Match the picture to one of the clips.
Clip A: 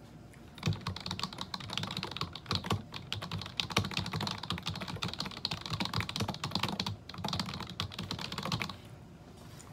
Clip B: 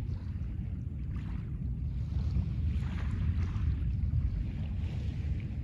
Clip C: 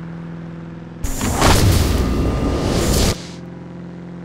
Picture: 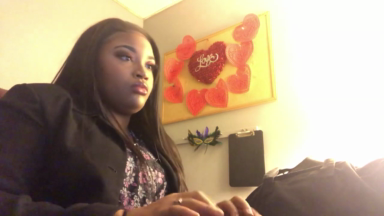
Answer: A